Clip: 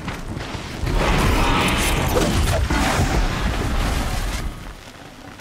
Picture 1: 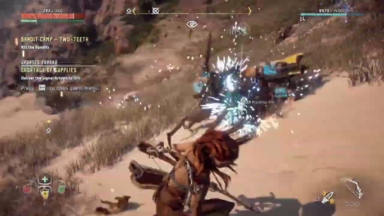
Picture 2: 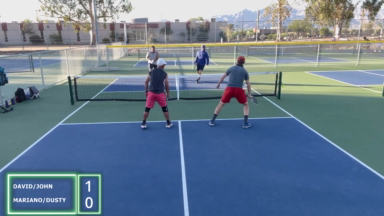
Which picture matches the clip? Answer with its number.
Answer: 1